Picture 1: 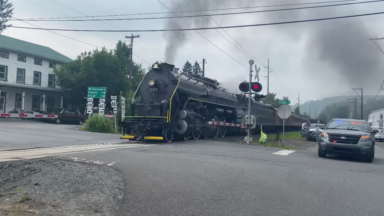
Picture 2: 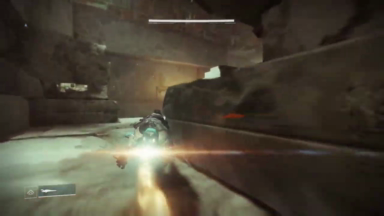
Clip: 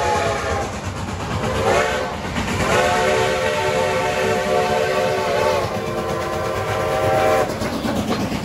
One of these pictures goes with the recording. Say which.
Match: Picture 1